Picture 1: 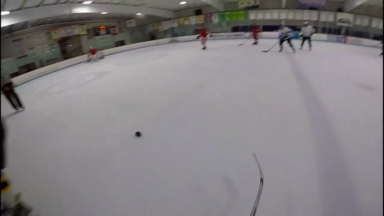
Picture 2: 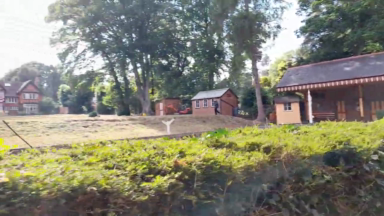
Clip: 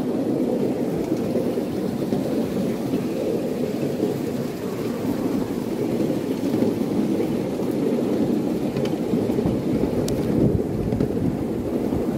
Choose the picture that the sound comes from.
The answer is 2